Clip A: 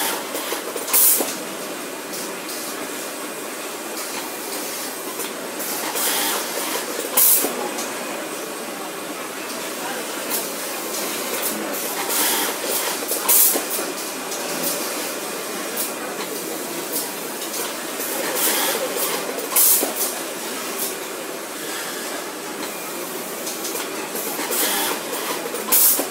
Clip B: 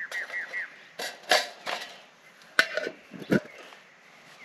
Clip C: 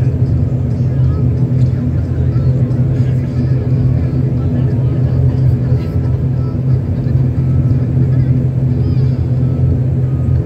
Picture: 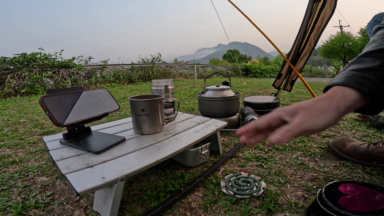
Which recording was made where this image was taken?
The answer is B